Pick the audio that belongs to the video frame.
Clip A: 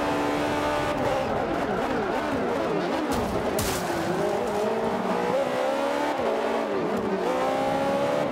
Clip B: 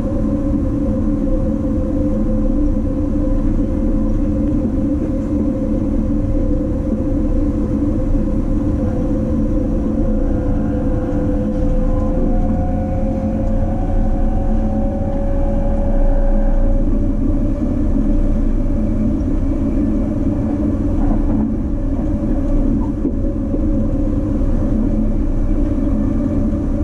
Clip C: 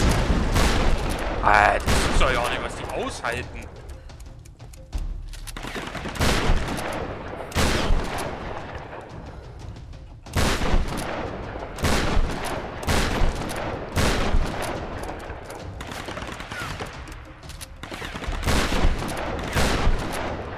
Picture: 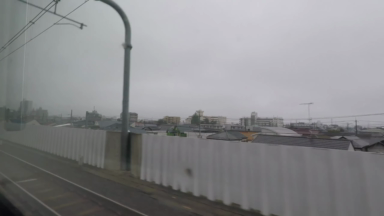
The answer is B